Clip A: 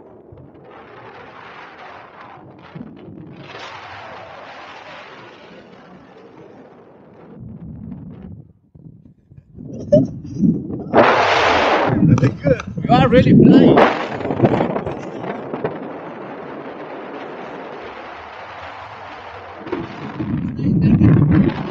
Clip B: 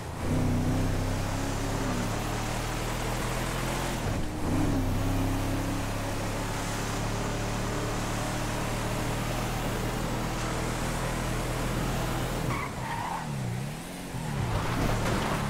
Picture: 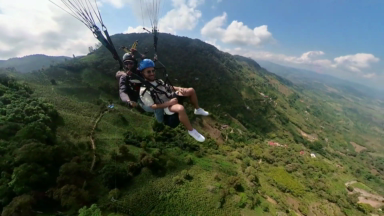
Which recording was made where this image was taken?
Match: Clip A